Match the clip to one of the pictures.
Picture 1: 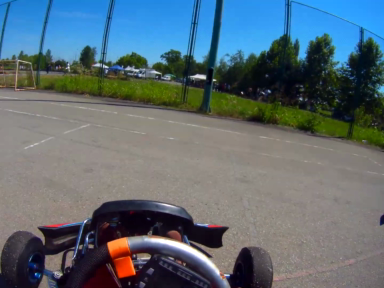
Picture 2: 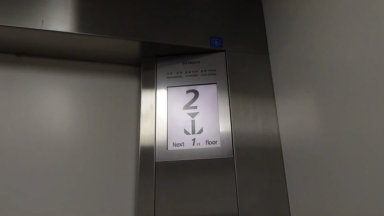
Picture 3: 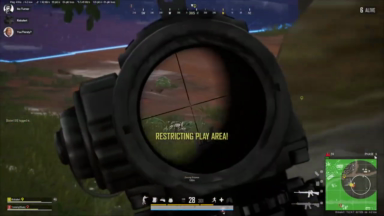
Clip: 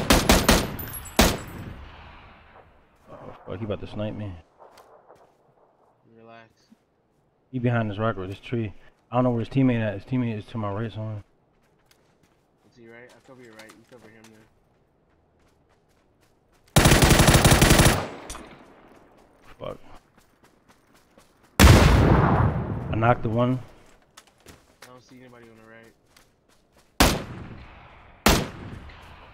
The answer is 3